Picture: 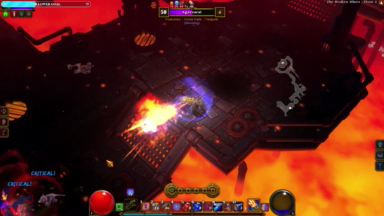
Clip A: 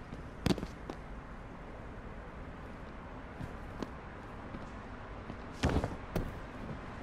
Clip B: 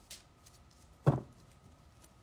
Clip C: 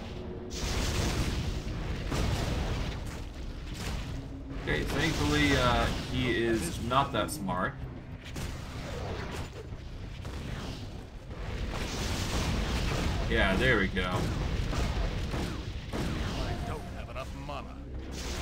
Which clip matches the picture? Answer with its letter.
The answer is C